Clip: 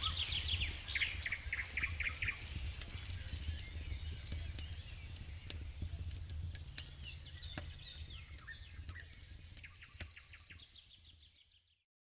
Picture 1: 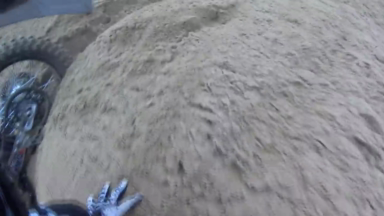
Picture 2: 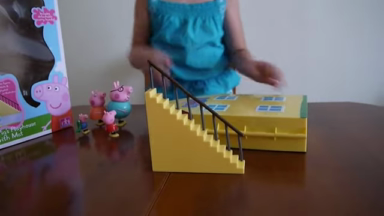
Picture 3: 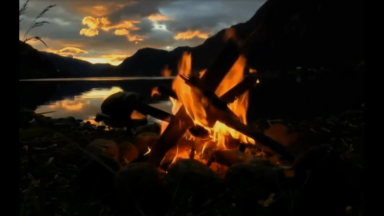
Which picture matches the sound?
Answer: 3